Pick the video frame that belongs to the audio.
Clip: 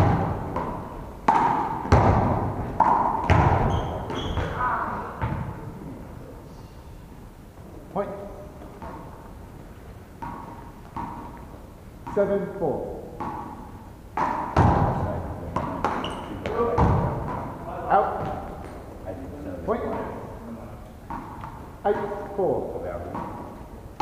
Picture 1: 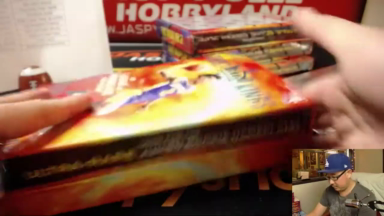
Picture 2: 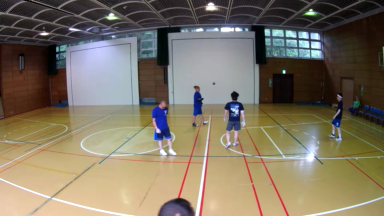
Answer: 2